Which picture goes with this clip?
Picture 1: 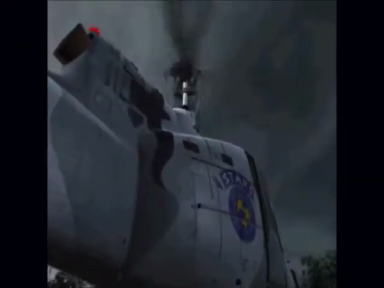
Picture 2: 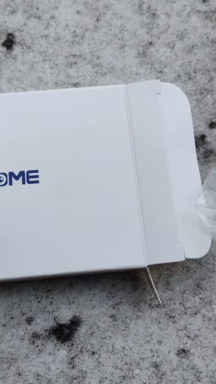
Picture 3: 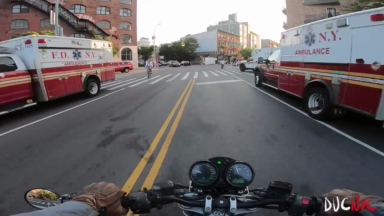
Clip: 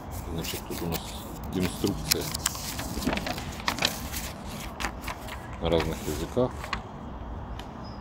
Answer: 2